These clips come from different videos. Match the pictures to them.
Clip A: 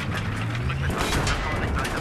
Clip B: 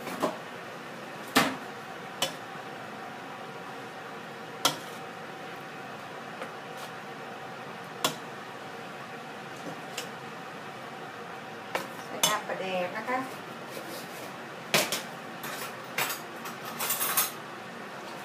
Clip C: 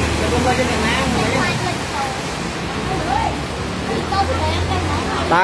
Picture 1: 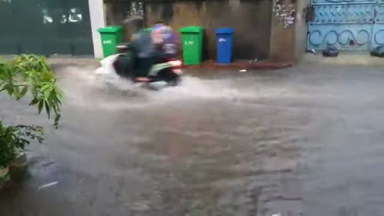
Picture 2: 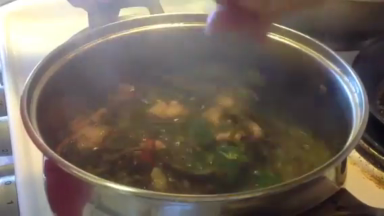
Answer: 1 C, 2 B